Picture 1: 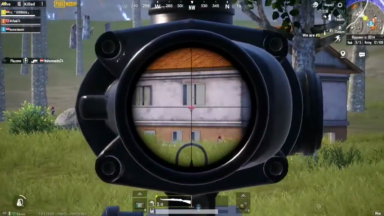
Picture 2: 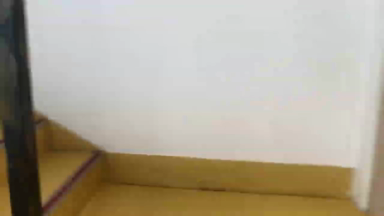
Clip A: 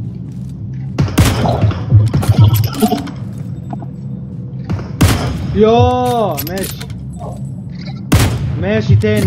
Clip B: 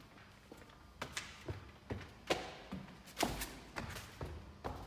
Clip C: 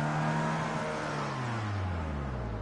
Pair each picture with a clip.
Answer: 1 A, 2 B